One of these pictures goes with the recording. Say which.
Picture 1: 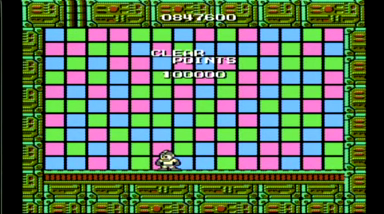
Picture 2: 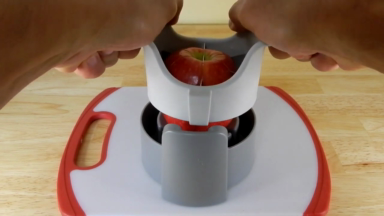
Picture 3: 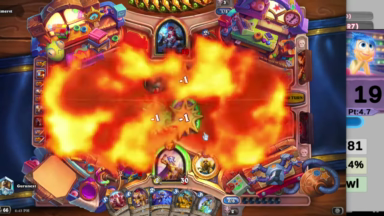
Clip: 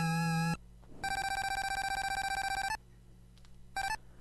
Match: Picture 1